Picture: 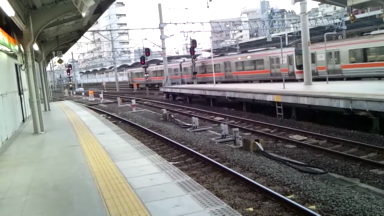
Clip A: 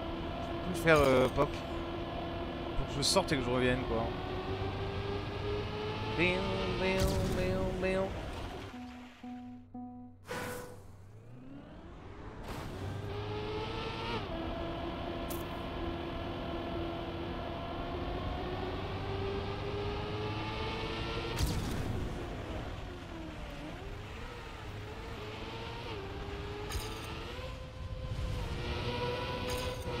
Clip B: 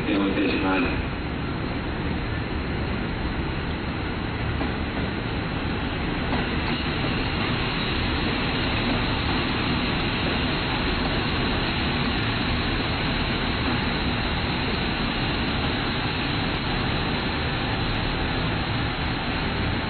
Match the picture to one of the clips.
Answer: B